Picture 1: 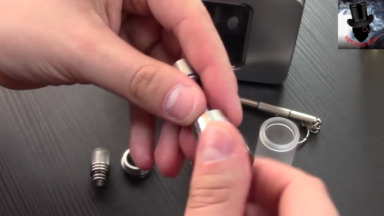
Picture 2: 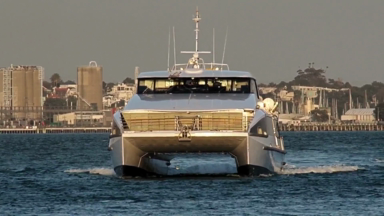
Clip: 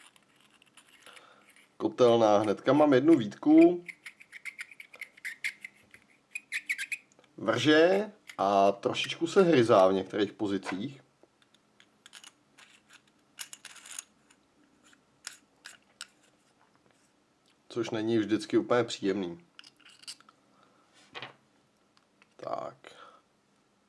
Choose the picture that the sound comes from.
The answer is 1